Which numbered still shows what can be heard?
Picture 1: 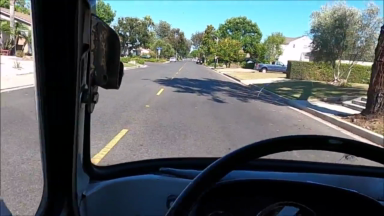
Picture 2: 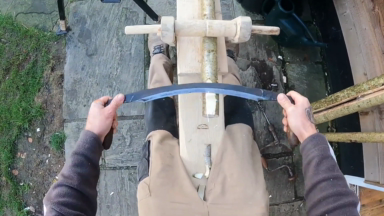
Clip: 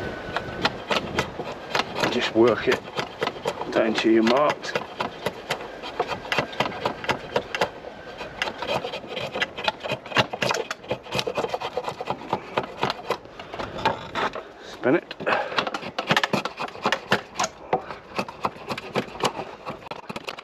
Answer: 2